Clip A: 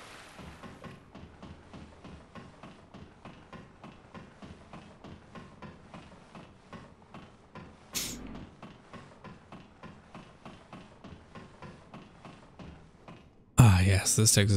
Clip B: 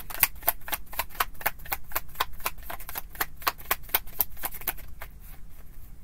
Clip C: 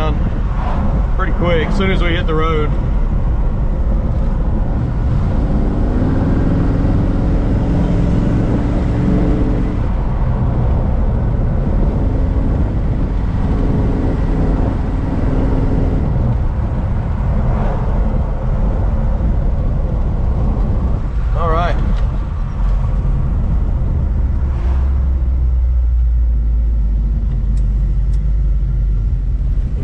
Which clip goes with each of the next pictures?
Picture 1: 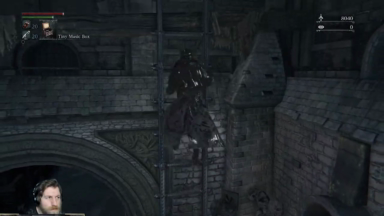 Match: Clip A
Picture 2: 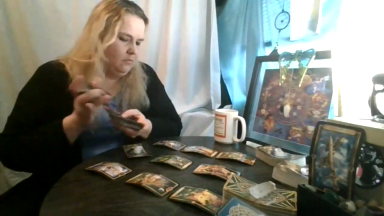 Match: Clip B